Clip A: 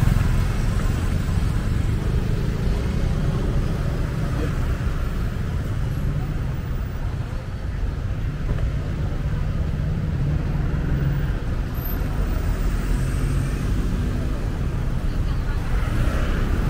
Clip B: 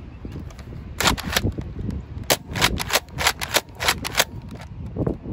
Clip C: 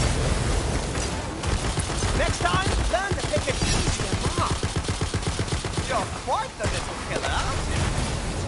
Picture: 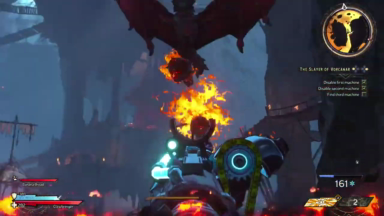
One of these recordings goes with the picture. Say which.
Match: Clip C